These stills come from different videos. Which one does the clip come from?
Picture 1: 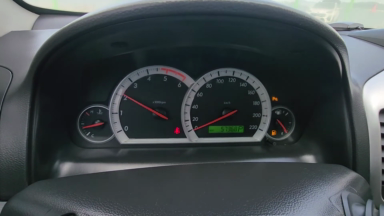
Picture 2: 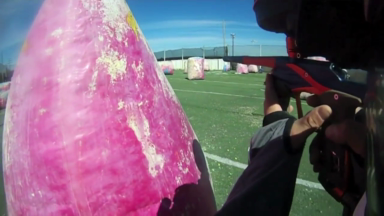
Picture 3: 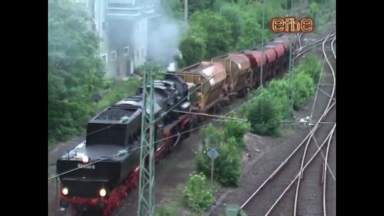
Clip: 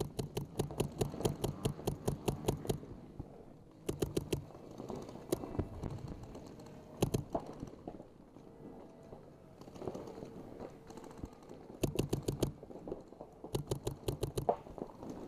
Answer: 2